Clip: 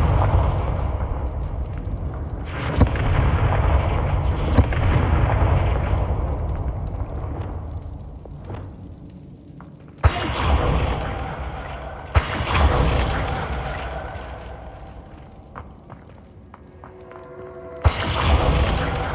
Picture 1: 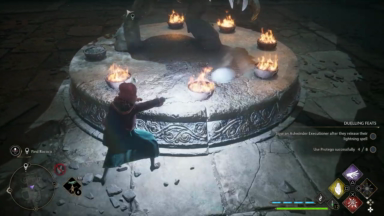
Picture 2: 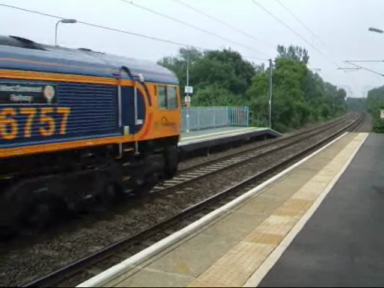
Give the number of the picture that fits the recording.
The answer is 1